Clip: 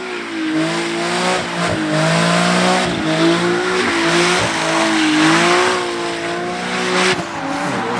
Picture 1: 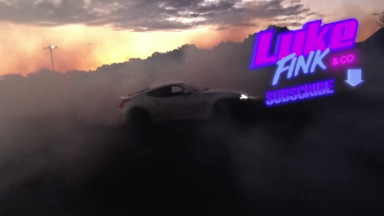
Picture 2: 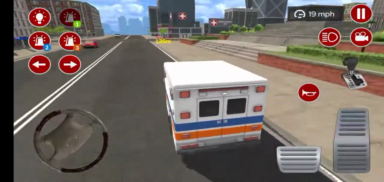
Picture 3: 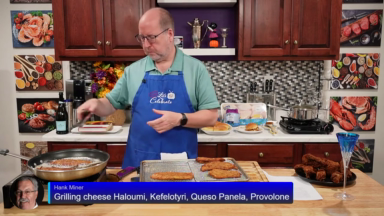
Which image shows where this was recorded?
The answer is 1